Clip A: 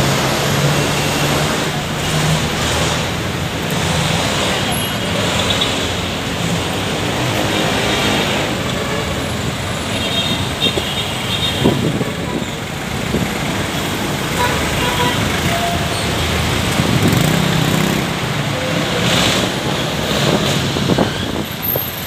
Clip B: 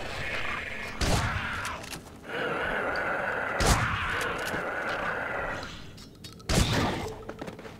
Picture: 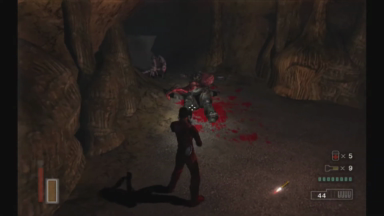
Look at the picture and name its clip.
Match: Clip B